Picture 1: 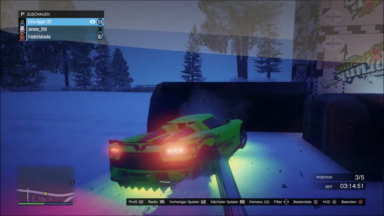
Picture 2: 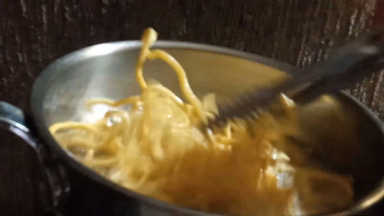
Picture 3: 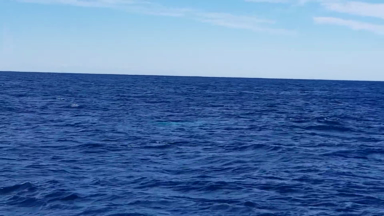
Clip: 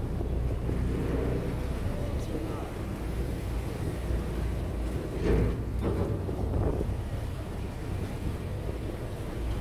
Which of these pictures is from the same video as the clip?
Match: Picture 3